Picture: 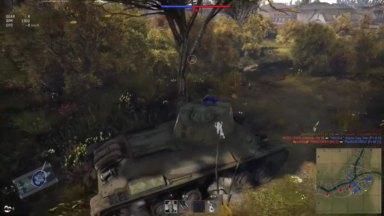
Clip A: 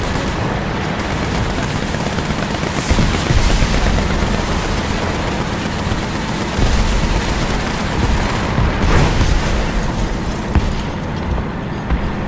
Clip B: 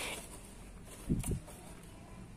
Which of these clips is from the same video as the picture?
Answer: A